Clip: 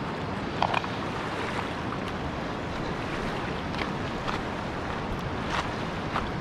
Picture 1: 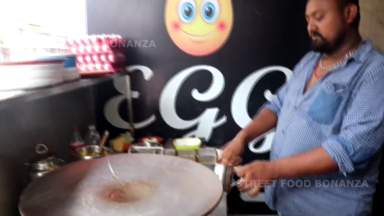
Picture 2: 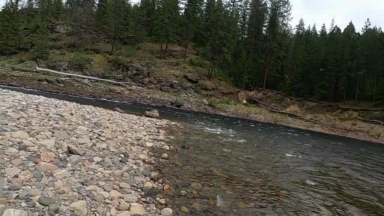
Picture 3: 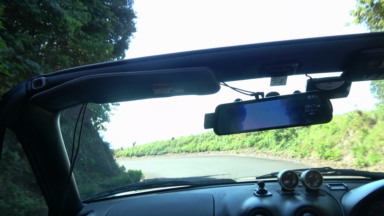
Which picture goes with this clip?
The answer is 2